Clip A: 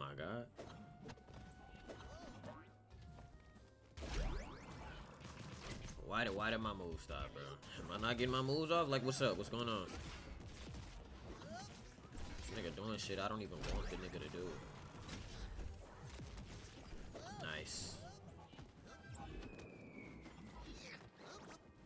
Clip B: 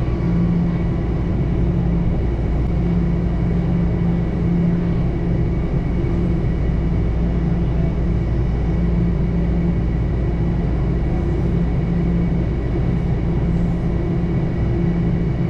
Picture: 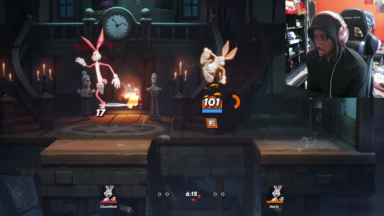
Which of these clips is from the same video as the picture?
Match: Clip A